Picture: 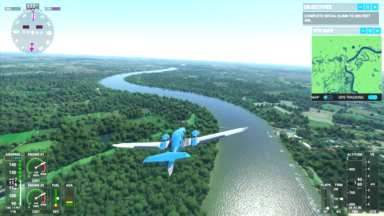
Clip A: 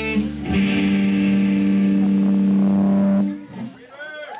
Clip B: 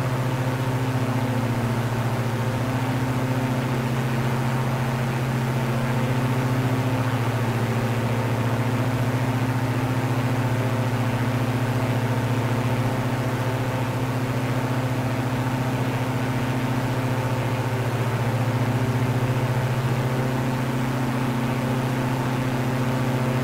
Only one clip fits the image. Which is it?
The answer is B